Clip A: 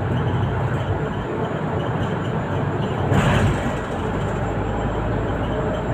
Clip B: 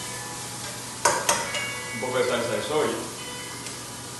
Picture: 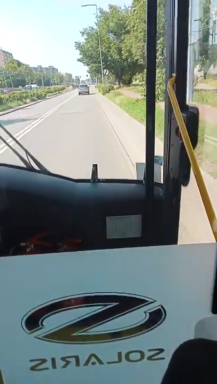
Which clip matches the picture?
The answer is A